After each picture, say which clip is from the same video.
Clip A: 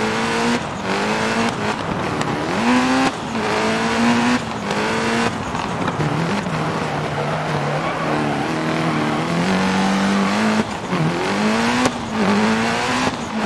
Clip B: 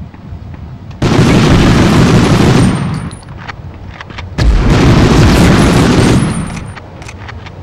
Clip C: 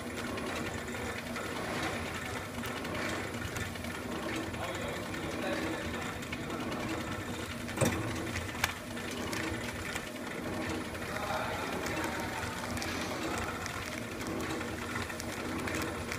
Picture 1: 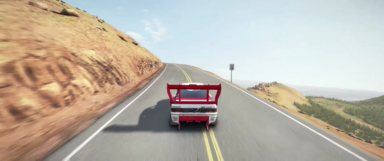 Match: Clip A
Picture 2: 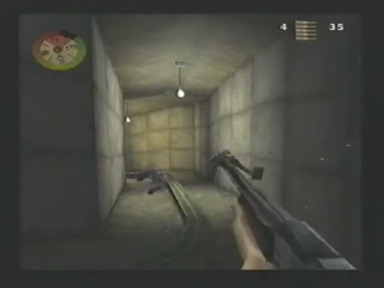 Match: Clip B